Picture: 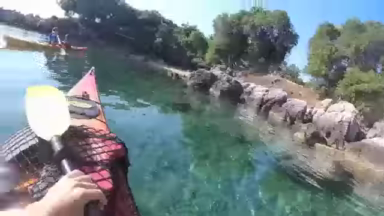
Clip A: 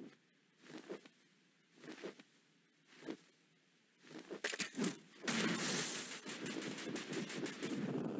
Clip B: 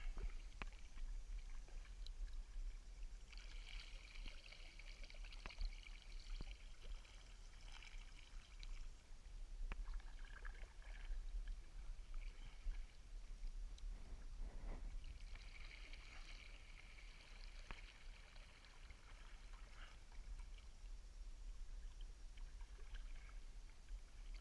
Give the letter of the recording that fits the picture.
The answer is B